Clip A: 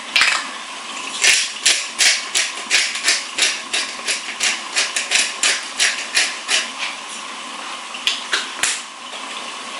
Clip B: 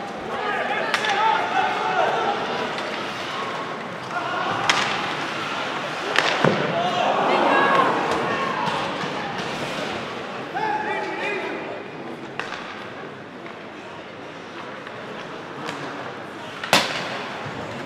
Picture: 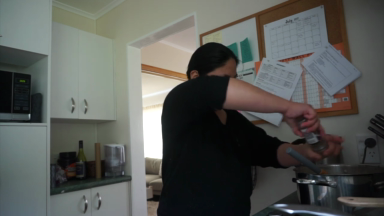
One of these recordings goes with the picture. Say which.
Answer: A